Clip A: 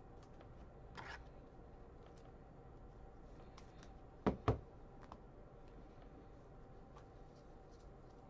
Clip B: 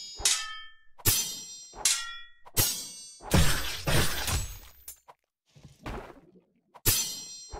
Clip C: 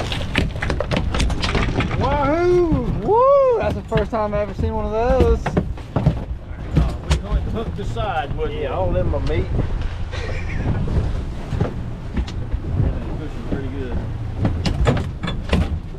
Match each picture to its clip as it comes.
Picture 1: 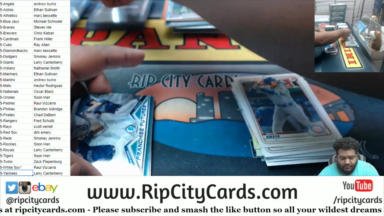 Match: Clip A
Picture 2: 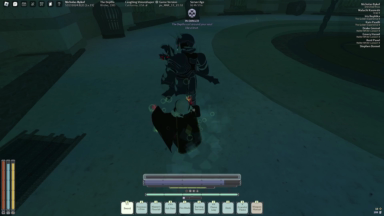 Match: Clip B